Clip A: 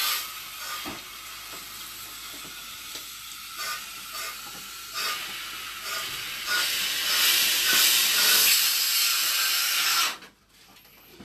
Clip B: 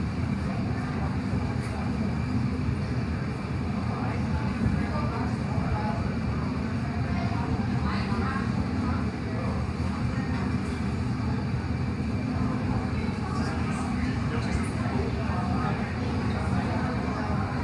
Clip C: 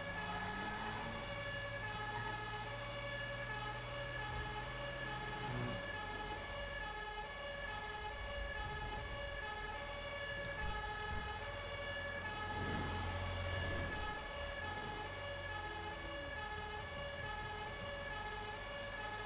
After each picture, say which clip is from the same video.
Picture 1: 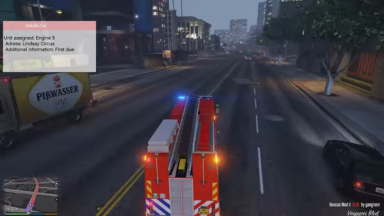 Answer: C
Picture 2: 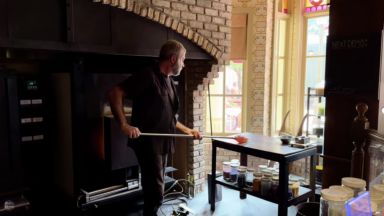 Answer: B